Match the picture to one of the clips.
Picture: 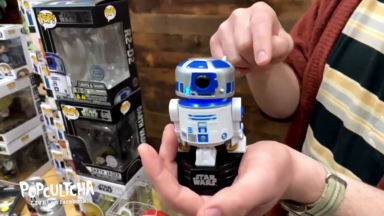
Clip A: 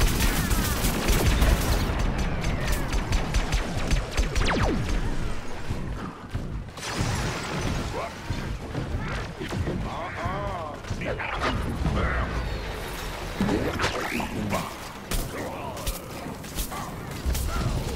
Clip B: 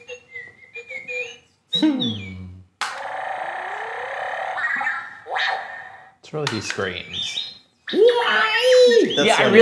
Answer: B